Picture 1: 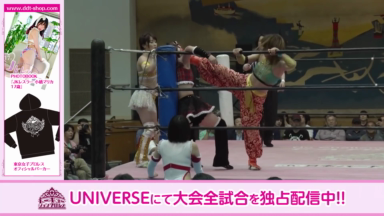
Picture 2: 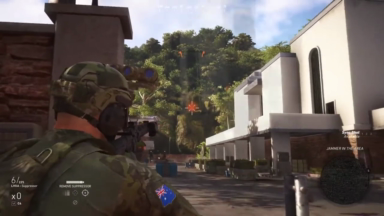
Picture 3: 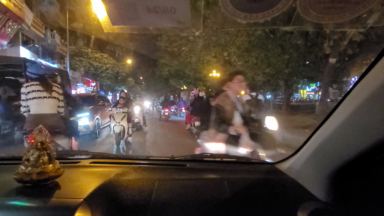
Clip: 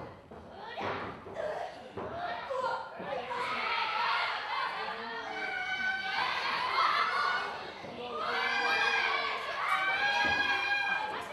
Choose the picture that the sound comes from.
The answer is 1